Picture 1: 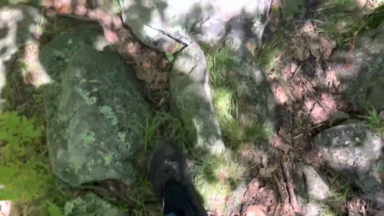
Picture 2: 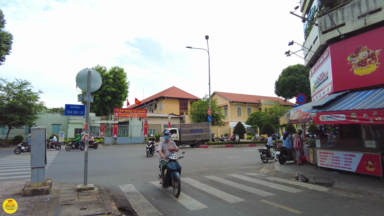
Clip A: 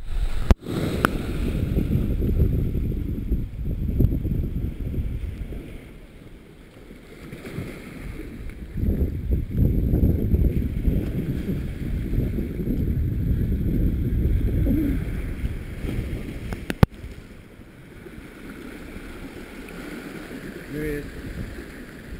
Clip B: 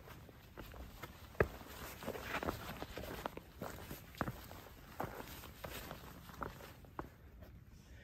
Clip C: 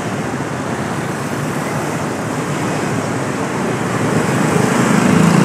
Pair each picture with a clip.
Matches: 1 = B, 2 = C